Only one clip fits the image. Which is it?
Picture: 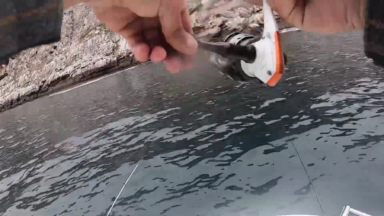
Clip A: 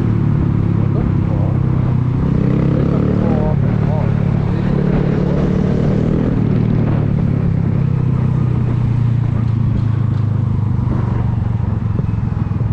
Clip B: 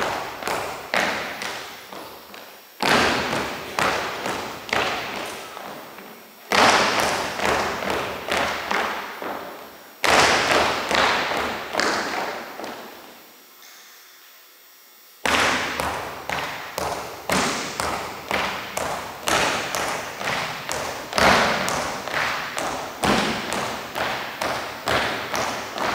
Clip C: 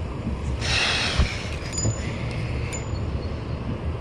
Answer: C